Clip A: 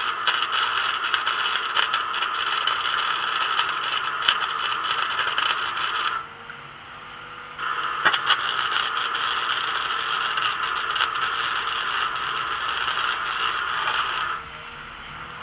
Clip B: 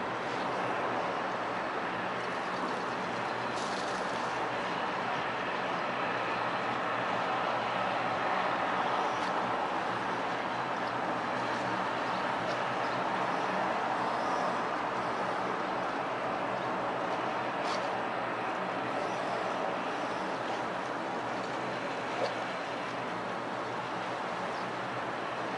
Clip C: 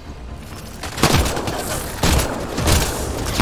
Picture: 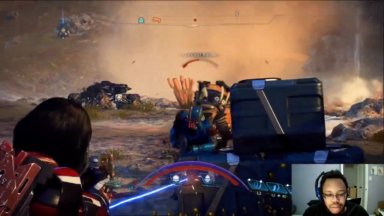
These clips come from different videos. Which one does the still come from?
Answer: C